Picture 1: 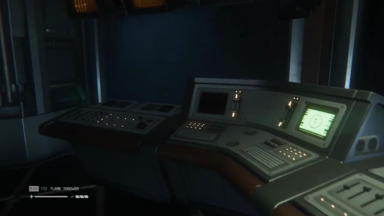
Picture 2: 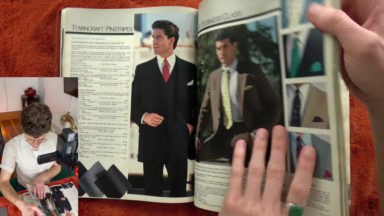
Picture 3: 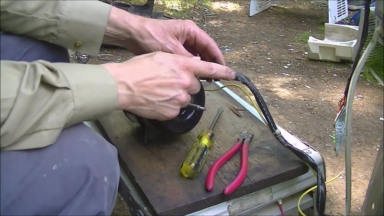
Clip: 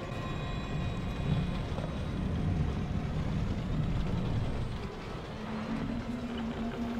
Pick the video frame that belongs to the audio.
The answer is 1